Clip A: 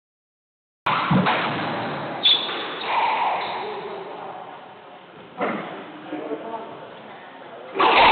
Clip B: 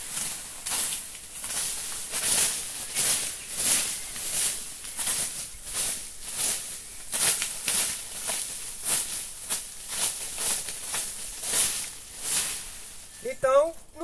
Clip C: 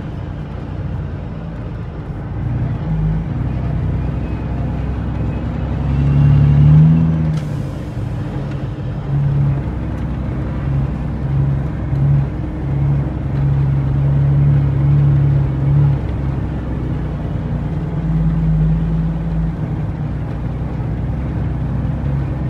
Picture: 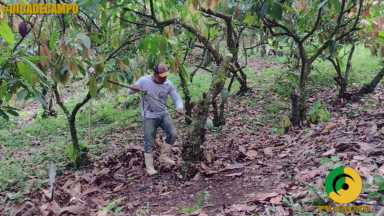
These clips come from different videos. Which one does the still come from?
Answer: B